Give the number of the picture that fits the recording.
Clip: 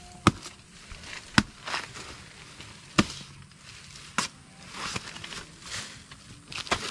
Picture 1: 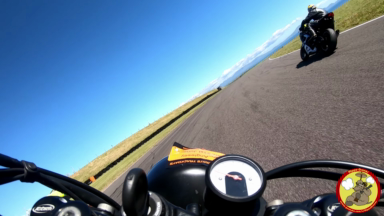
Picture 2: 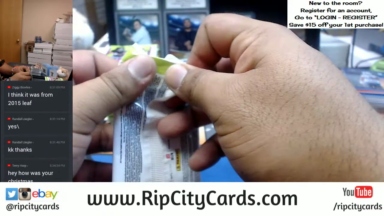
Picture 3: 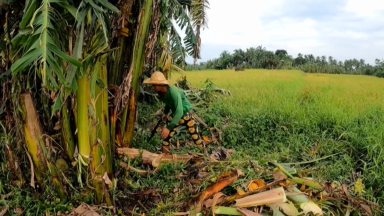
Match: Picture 3